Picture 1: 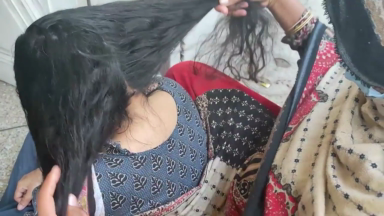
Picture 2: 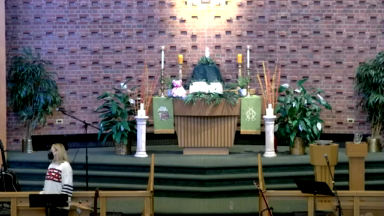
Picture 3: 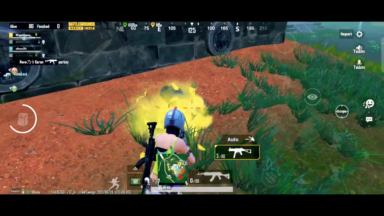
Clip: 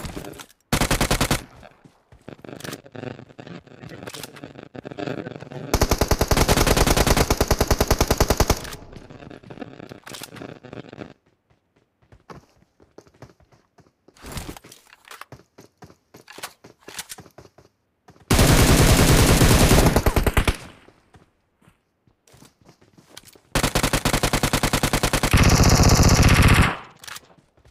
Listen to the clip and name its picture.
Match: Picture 3